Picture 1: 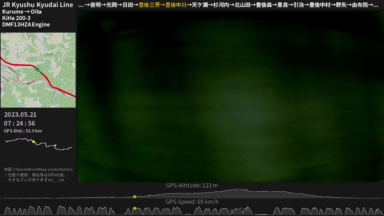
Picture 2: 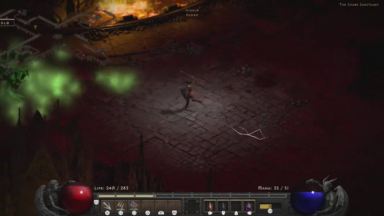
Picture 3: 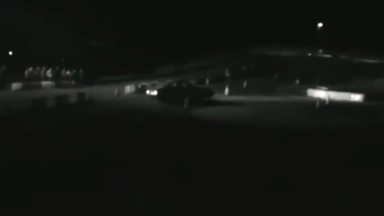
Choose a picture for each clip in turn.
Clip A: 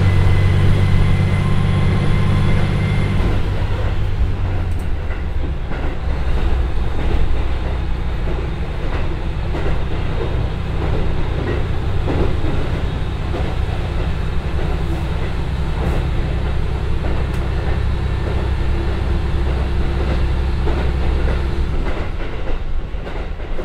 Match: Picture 1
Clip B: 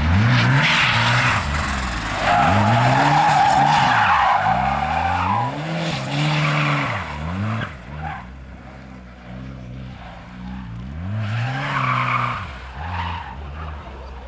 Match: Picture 3